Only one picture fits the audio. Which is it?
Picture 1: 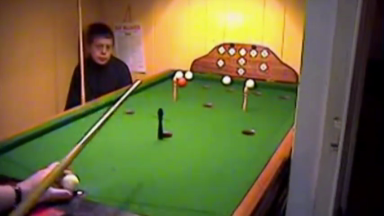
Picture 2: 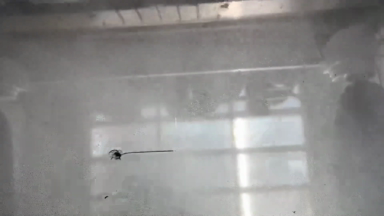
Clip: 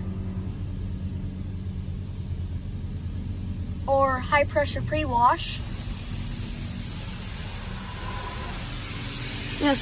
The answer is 2